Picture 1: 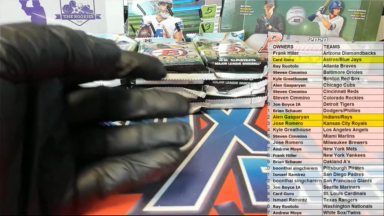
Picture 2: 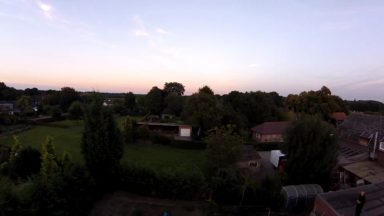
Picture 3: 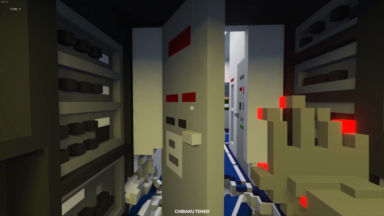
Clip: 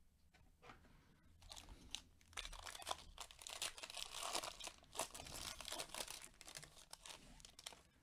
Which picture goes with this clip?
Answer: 1